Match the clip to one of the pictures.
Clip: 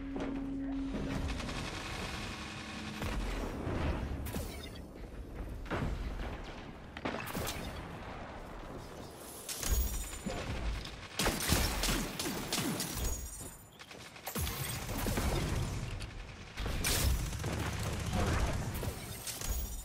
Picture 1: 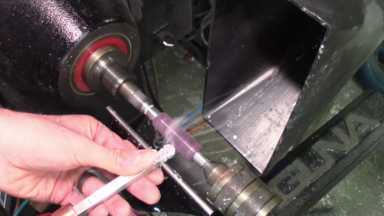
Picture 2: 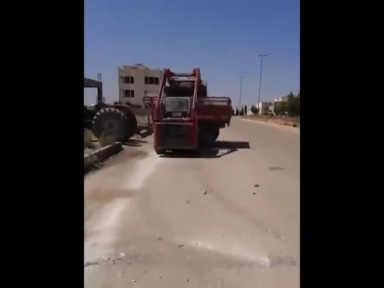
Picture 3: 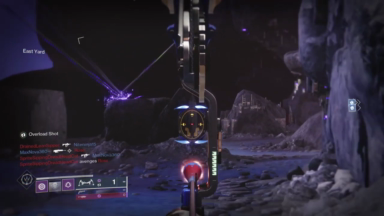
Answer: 3